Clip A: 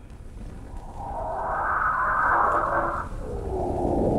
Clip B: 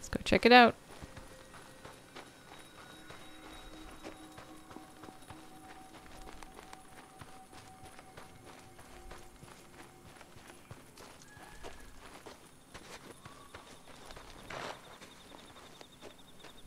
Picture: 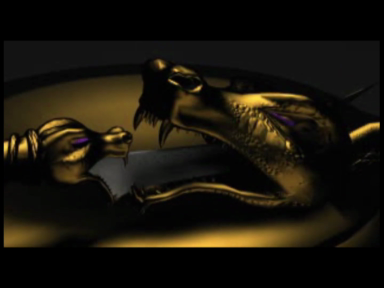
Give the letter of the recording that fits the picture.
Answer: A